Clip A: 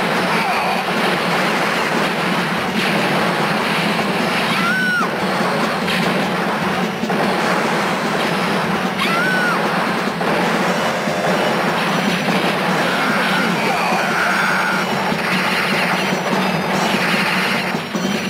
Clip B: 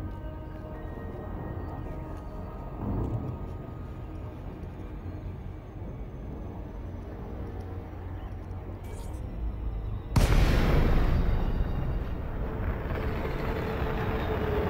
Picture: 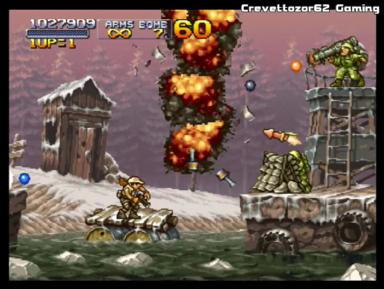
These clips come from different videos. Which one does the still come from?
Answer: A